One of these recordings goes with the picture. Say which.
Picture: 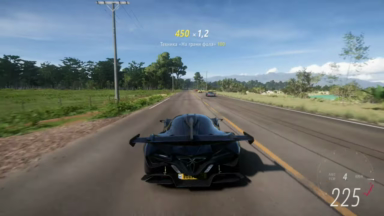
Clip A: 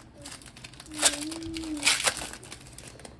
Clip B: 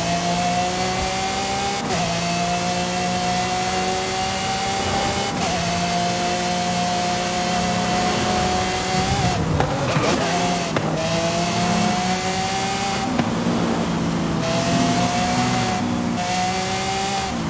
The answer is B